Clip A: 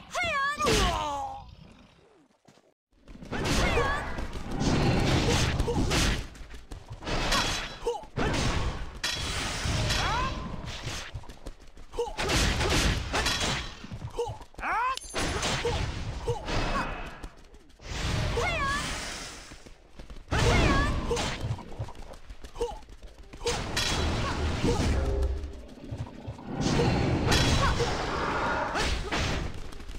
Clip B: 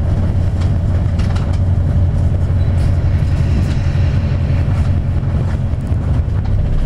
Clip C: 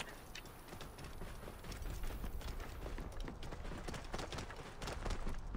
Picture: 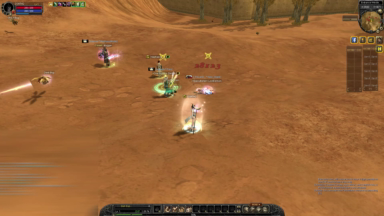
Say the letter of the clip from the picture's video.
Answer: A